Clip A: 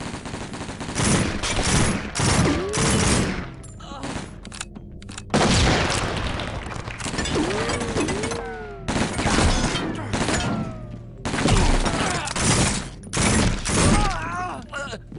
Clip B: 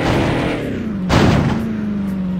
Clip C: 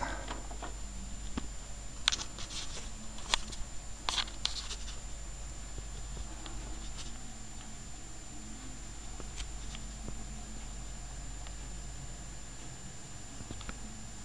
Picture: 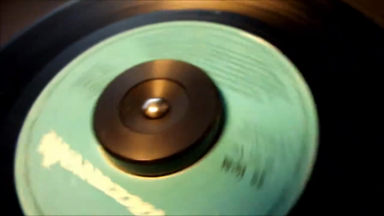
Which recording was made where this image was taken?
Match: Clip C